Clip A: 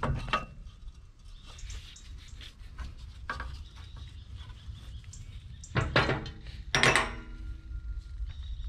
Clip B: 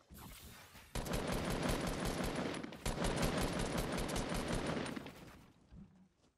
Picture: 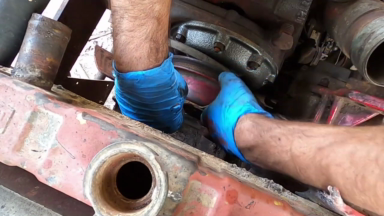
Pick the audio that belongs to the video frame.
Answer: A